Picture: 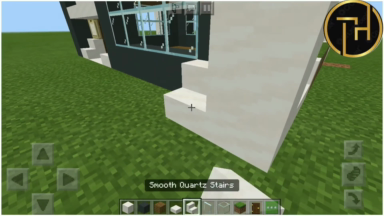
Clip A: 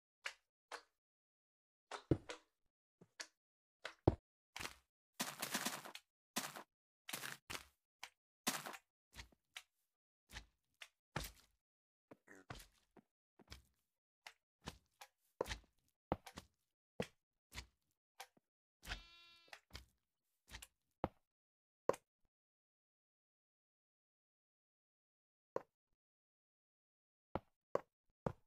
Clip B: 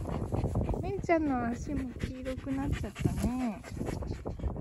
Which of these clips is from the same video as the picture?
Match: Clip A